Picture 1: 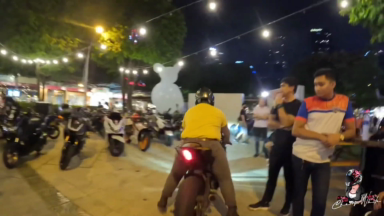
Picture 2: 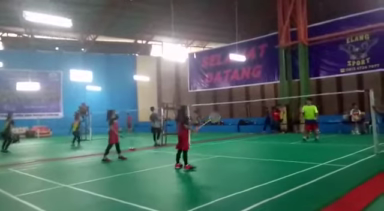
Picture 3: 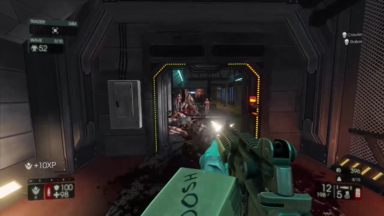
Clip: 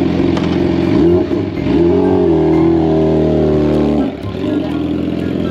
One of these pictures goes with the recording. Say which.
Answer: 1